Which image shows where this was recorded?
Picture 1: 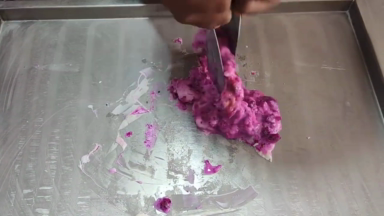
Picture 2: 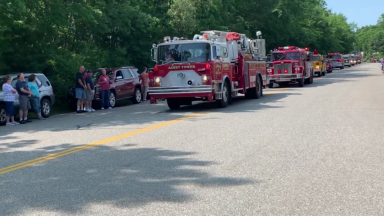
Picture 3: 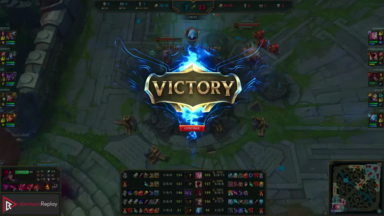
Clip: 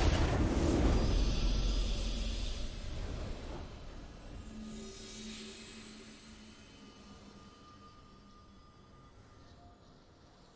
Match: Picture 3